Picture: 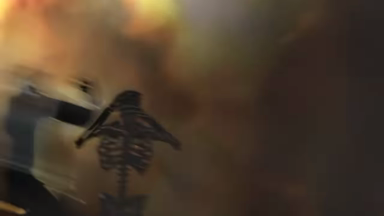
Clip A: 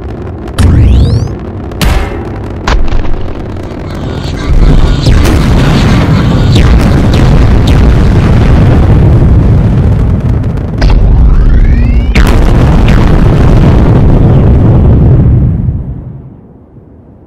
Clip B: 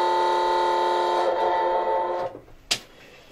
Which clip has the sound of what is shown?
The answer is A